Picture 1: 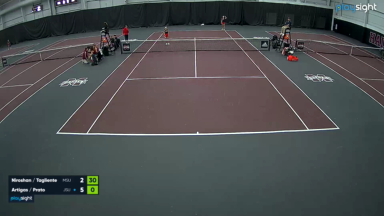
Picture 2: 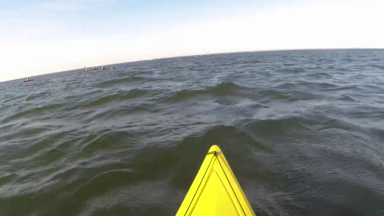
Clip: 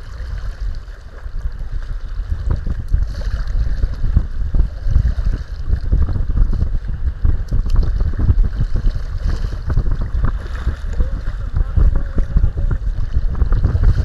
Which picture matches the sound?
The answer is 2